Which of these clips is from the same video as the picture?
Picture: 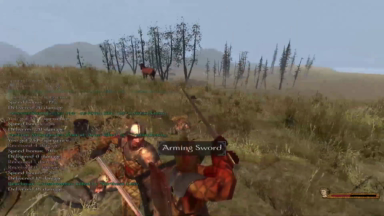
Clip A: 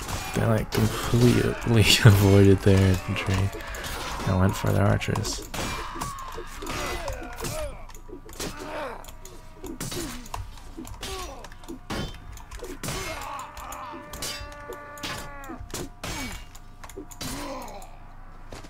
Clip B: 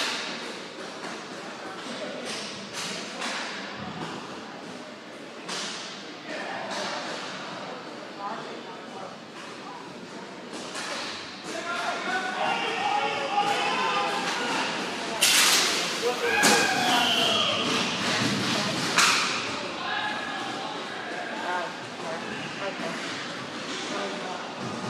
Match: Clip A